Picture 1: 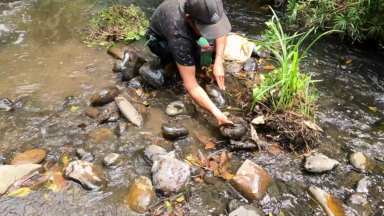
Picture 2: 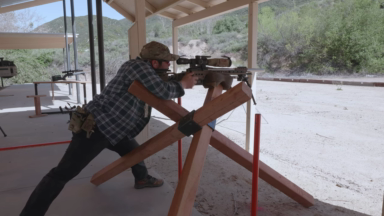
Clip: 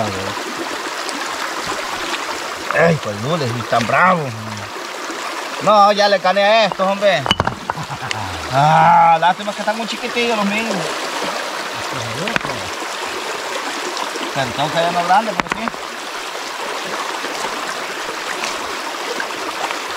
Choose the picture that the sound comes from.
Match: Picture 1